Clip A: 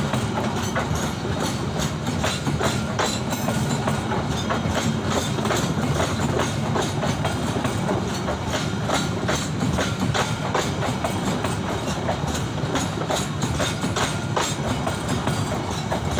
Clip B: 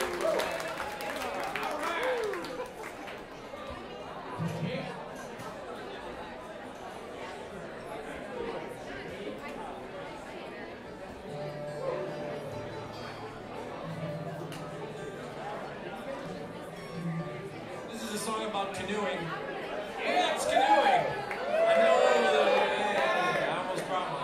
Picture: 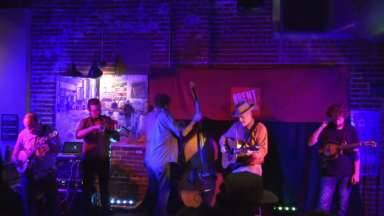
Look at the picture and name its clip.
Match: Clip B